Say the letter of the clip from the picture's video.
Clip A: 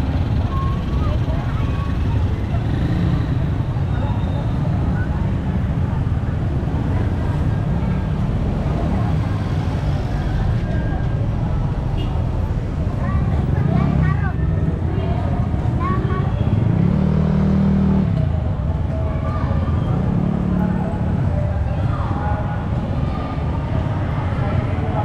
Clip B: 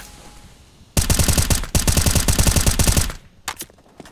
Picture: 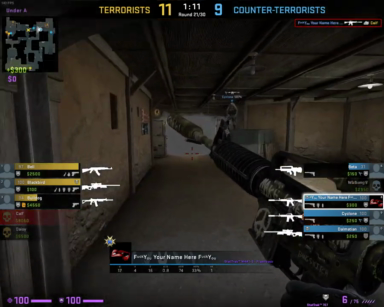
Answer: B